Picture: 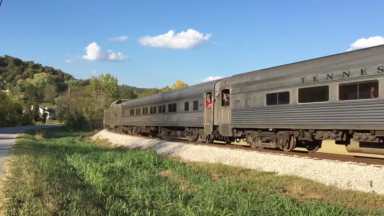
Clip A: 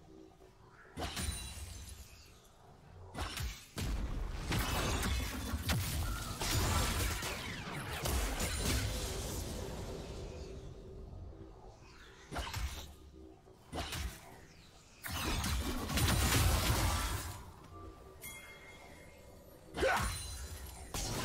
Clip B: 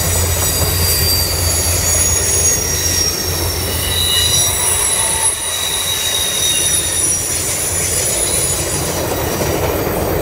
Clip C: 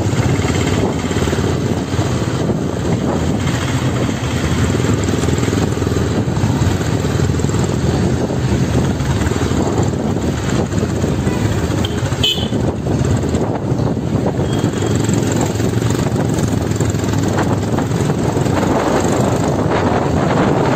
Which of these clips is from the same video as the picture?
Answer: B